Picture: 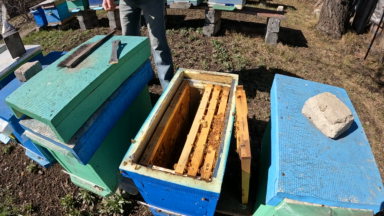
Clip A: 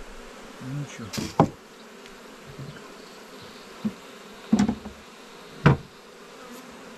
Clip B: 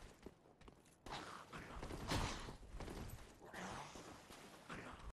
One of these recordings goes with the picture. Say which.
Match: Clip A